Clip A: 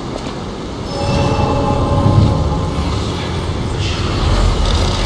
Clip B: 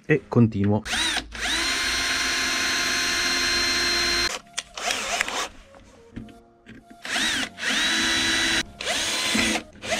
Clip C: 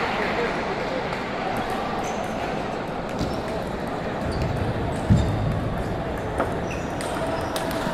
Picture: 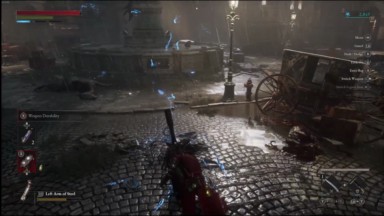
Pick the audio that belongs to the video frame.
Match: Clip A